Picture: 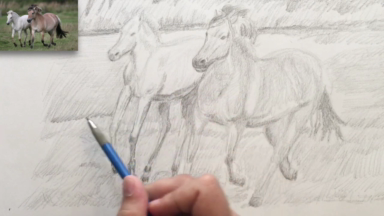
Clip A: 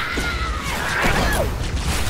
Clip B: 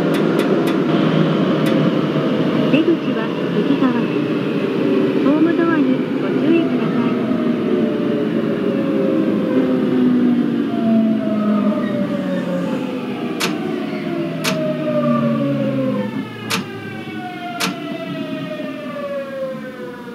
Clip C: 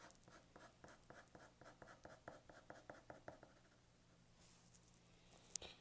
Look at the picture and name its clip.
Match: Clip C